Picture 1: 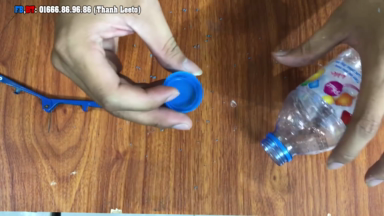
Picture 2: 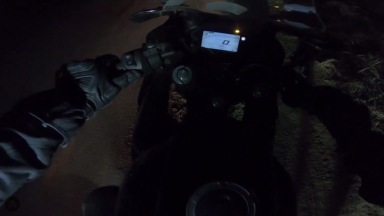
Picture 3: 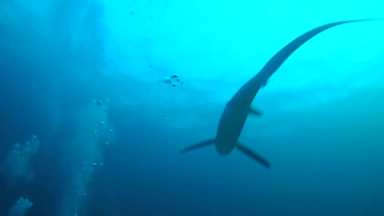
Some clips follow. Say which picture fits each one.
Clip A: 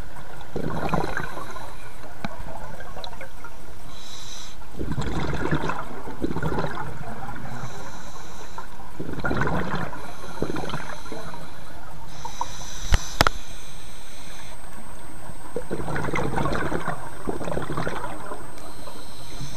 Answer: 3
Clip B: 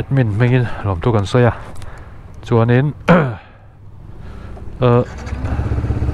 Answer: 2